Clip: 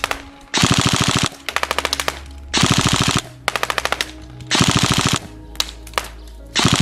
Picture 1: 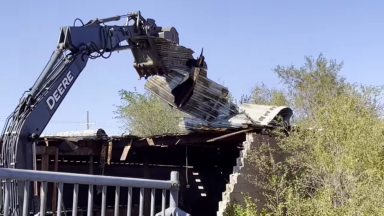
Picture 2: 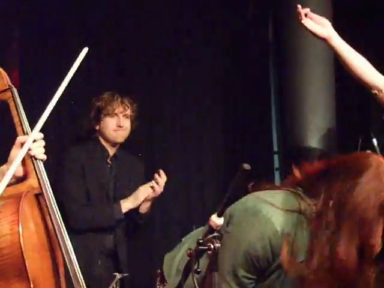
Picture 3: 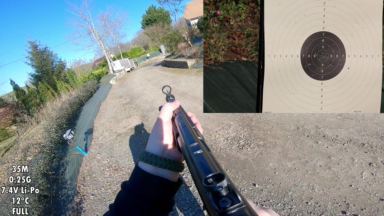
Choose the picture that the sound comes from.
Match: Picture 3